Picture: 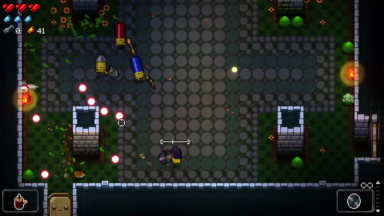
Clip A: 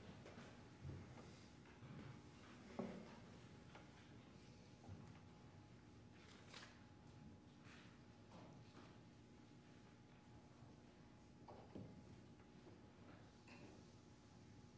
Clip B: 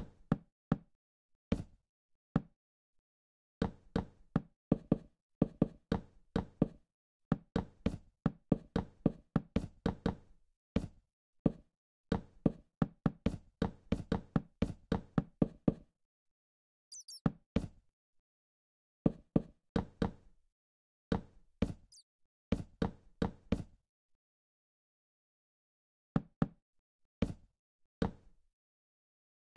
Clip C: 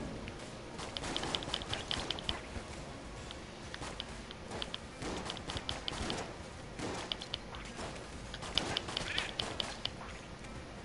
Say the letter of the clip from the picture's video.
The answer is C